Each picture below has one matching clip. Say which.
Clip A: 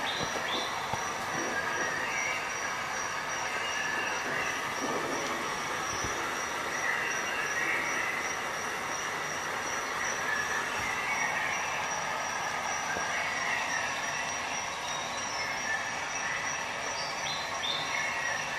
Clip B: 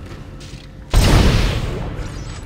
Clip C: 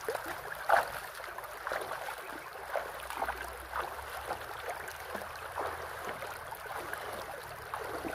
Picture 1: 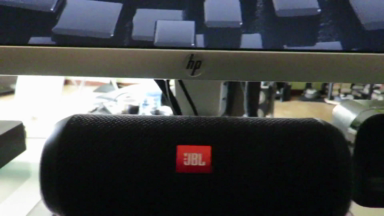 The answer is A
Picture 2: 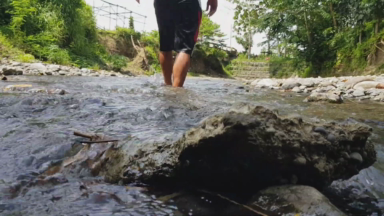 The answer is C